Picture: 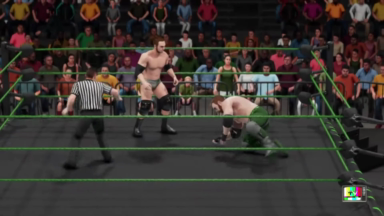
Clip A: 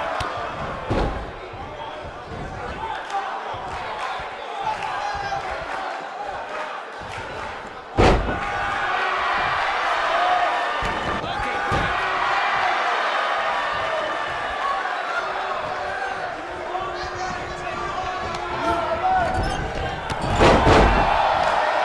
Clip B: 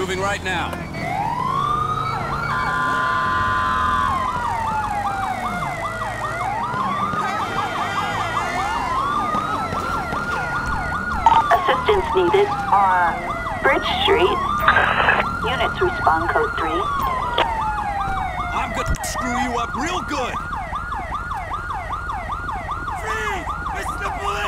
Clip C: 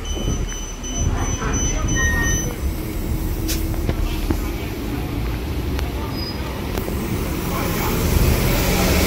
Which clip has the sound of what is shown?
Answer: A